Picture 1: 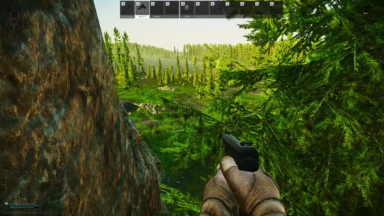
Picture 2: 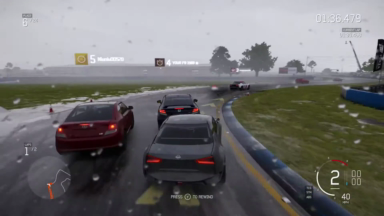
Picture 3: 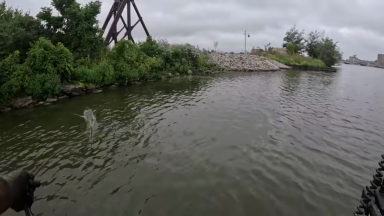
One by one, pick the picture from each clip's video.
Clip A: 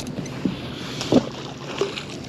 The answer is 3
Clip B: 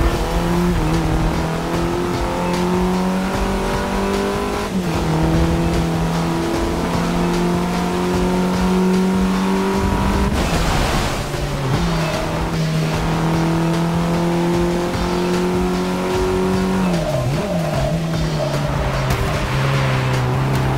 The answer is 2